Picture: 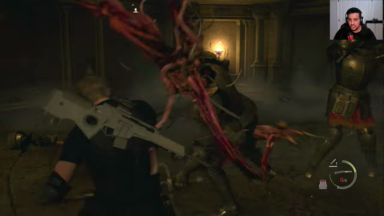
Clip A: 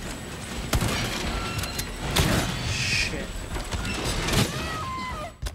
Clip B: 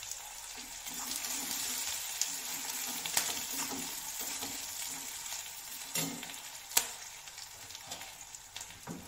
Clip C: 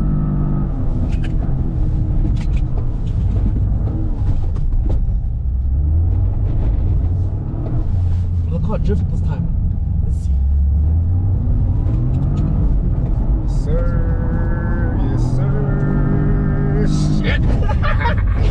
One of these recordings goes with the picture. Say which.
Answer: A